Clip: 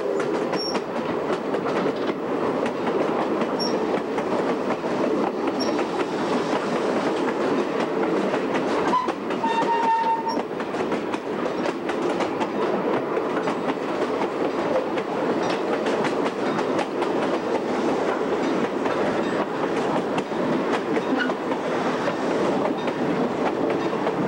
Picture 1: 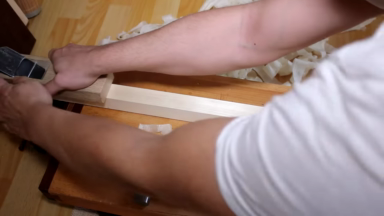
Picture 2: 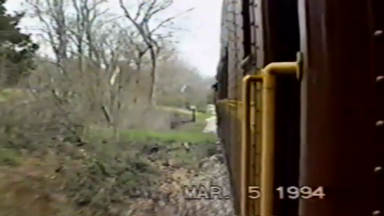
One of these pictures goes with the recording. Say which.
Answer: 2